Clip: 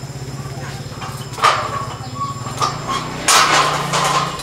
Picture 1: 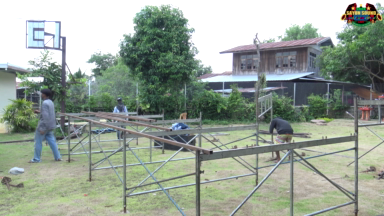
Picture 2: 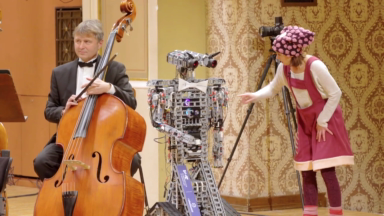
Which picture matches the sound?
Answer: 1